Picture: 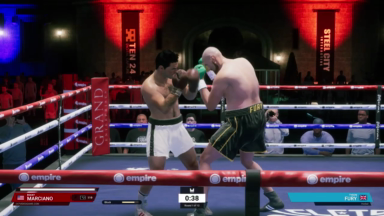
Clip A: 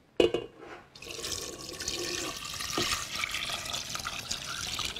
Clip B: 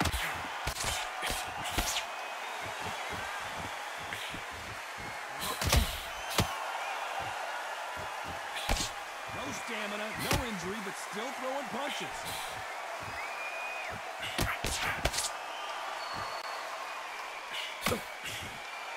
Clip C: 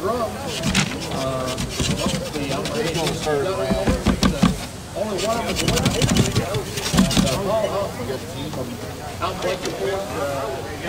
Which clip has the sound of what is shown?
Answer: B